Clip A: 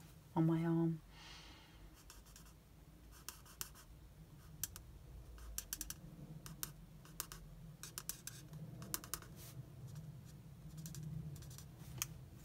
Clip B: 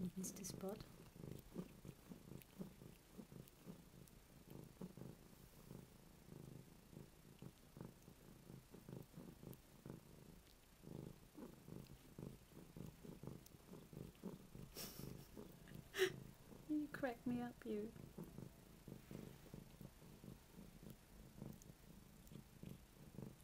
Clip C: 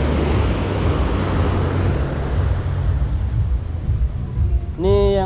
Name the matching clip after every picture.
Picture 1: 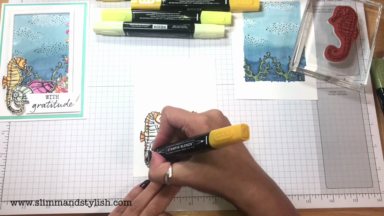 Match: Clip A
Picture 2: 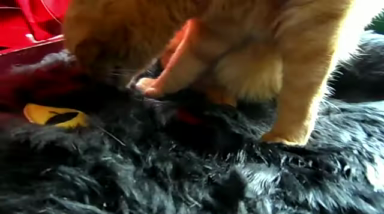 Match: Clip B